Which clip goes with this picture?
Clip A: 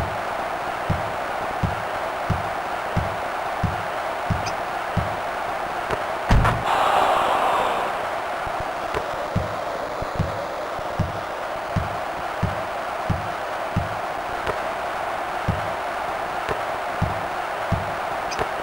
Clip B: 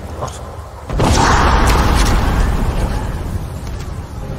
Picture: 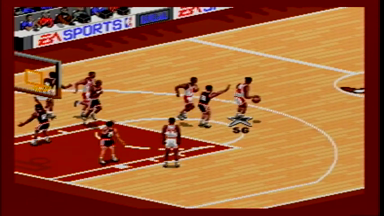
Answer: A